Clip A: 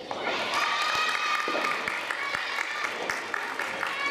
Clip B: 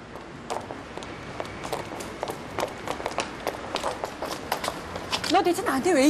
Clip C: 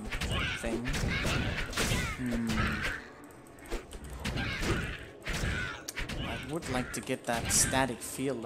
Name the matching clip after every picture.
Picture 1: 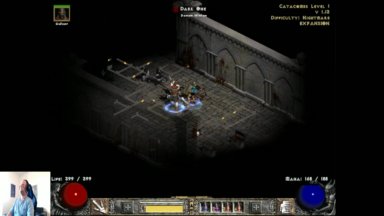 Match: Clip C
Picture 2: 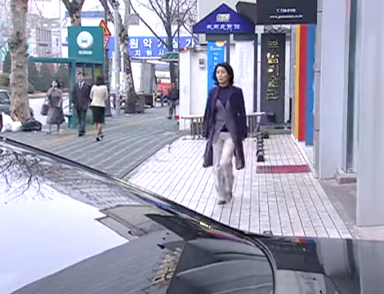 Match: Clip B